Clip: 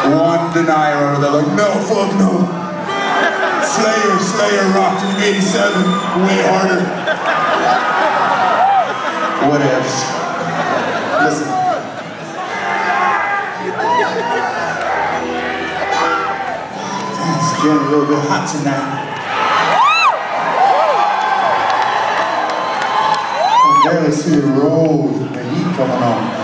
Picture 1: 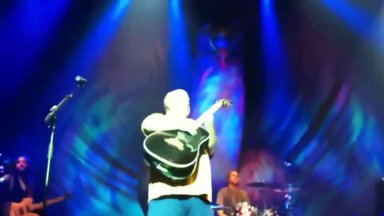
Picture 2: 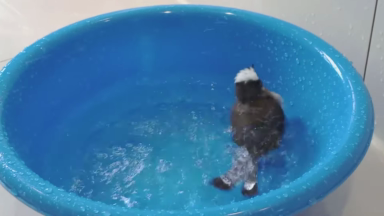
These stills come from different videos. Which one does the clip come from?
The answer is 1